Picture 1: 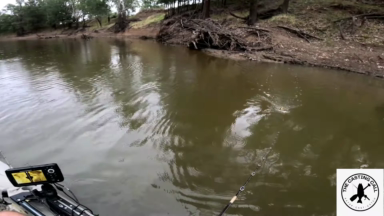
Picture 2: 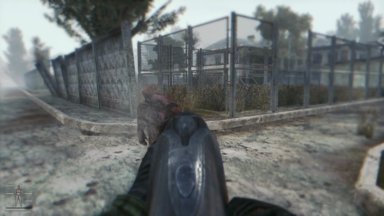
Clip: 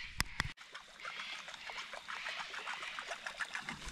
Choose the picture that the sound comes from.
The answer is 1